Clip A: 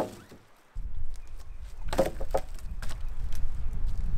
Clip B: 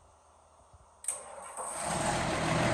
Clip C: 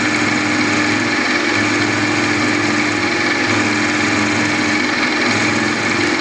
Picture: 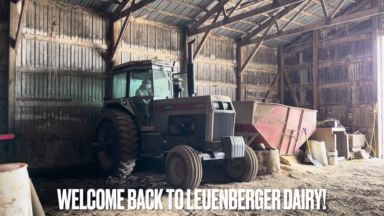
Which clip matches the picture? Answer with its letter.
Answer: B